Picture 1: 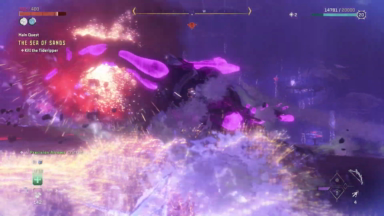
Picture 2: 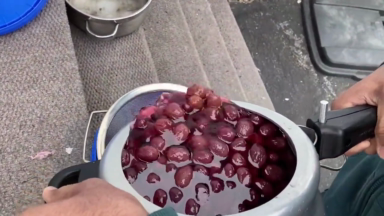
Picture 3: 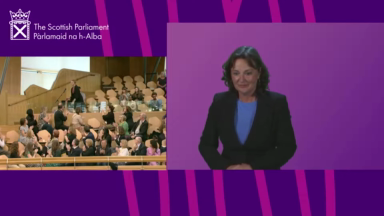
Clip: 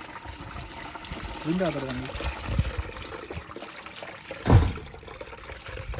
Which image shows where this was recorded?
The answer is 2